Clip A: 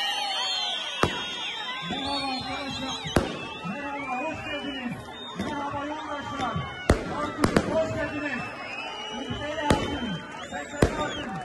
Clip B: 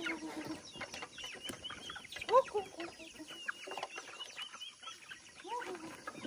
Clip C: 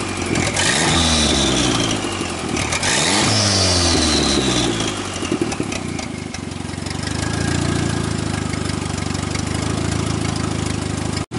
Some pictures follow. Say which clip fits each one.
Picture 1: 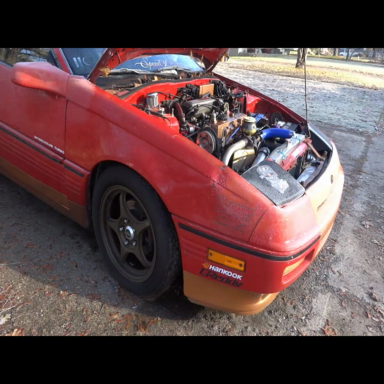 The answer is C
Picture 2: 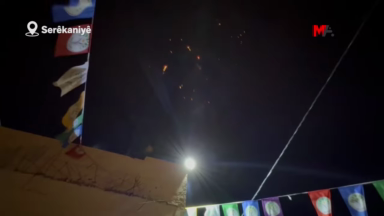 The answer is A